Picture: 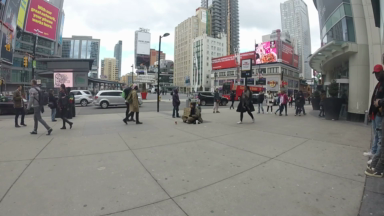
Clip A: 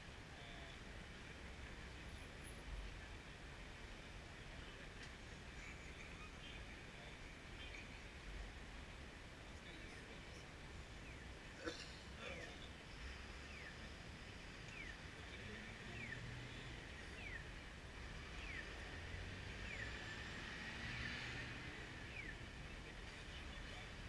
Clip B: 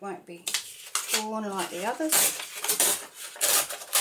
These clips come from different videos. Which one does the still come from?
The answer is A